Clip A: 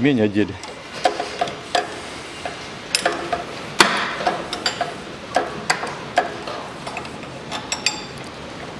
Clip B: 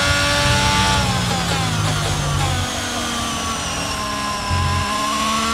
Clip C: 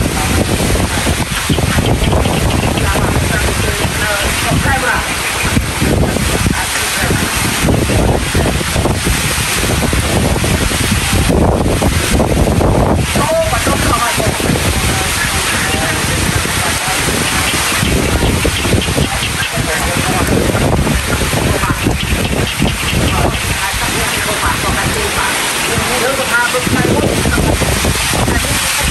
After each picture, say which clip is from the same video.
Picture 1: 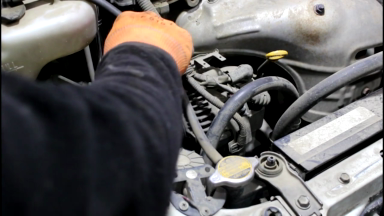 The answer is A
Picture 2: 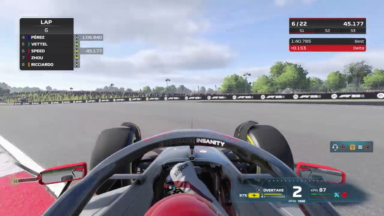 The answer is B